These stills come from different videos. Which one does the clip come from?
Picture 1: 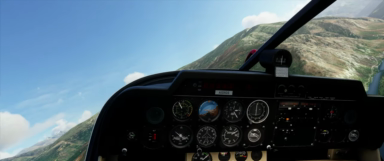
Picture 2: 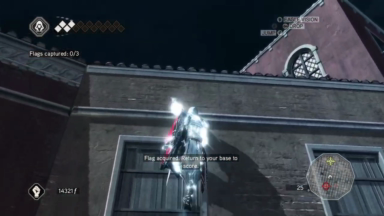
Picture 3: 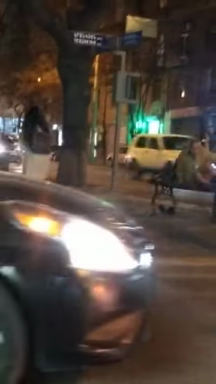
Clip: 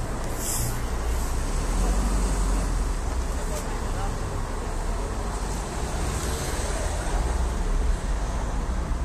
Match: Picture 3